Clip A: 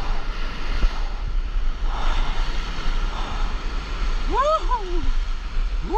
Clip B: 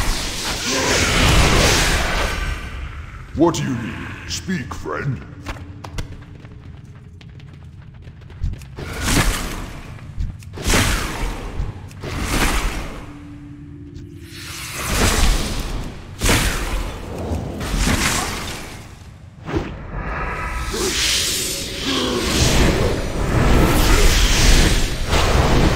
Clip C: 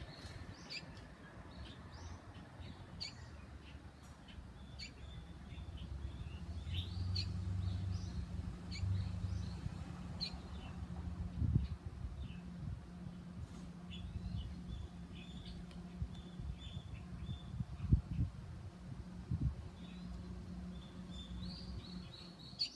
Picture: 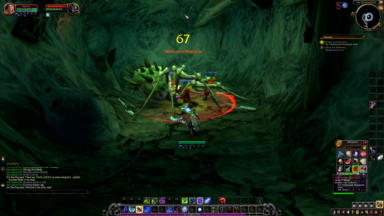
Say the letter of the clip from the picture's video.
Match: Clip B